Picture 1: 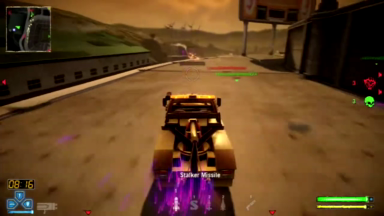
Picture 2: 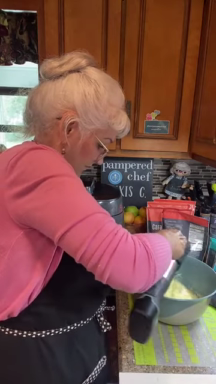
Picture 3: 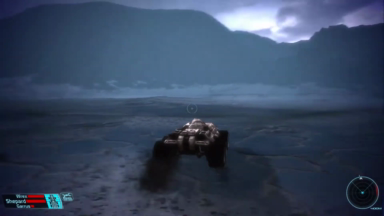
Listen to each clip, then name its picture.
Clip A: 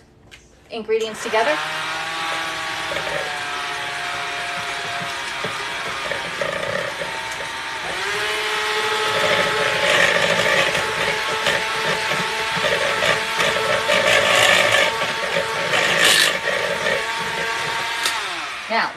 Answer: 2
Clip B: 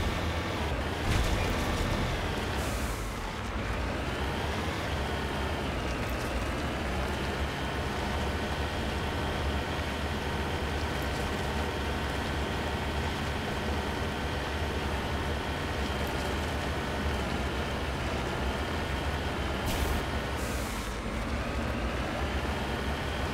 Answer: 3